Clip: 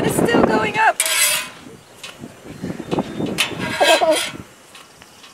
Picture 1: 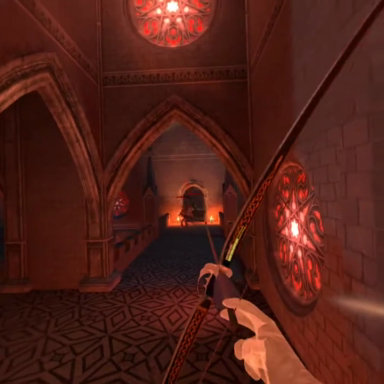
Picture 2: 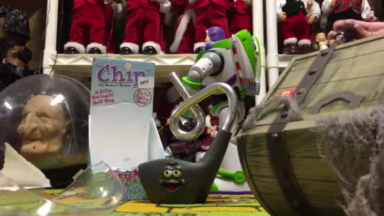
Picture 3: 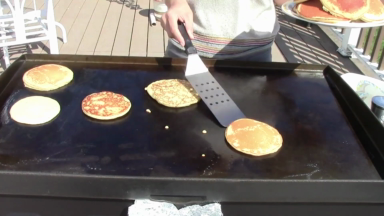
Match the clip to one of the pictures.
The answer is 3